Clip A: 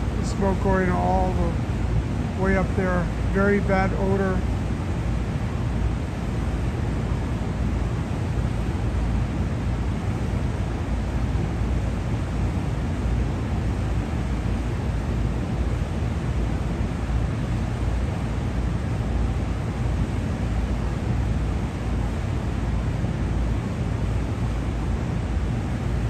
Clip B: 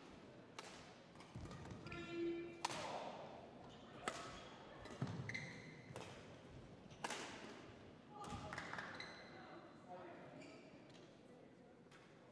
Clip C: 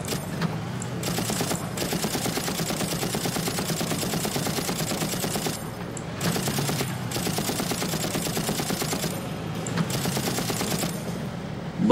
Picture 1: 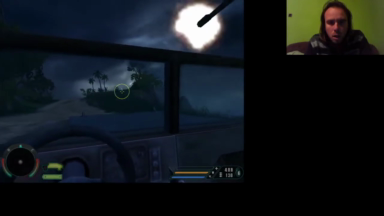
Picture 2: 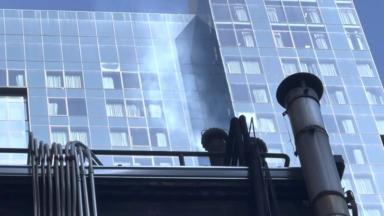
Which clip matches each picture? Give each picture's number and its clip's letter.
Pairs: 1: C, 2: A